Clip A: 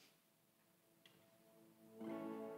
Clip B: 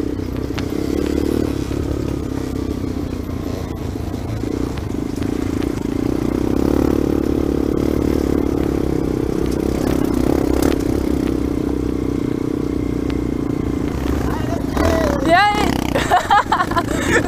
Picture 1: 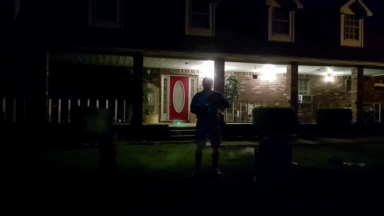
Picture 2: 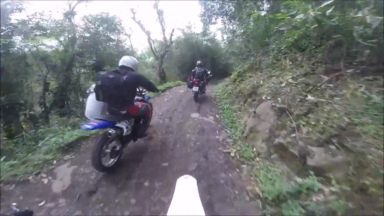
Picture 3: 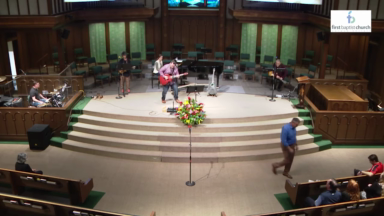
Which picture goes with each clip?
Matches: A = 3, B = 2